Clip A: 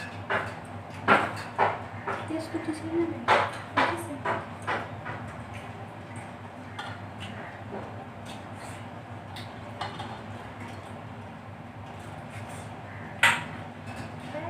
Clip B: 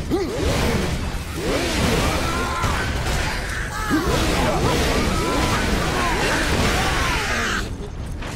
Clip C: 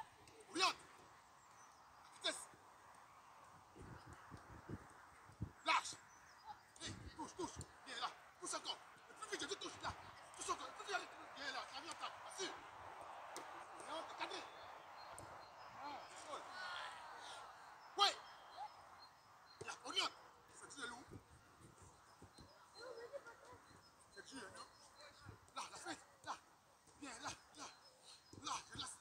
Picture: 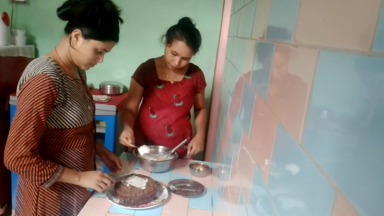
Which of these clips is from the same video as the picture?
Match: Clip A